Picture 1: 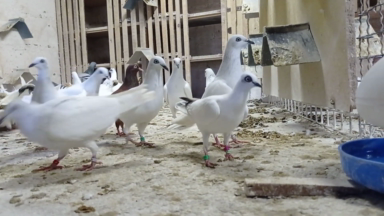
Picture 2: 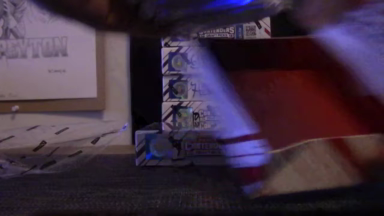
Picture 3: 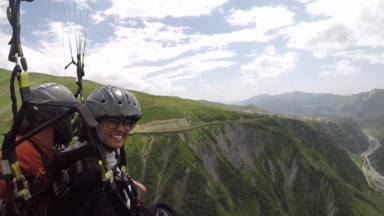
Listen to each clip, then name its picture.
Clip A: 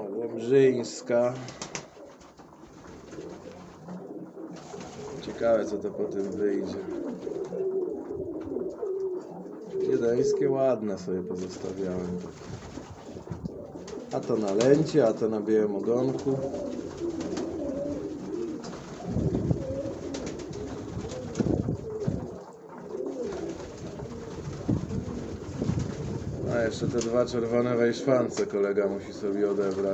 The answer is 1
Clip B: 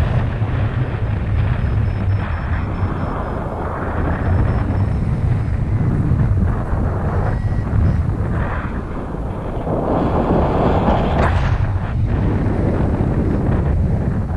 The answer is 3